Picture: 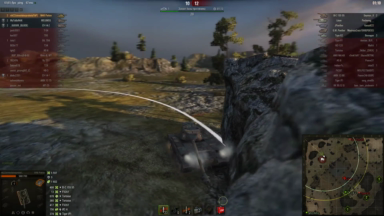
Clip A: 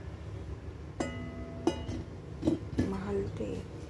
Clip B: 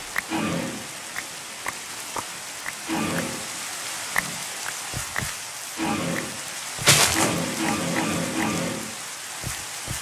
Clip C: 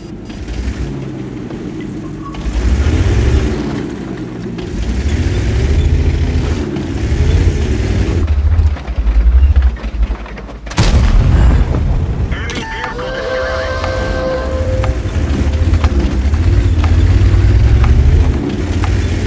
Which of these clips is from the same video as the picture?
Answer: C